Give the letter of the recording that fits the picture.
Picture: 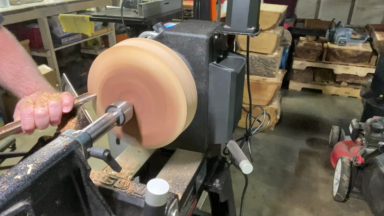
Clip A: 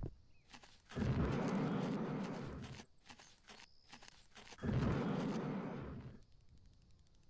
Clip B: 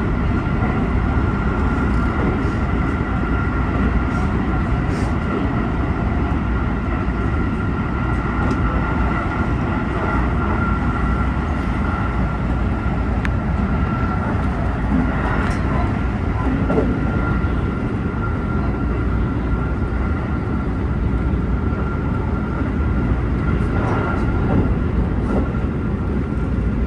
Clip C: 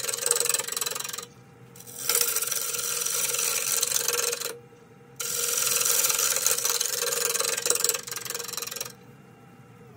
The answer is C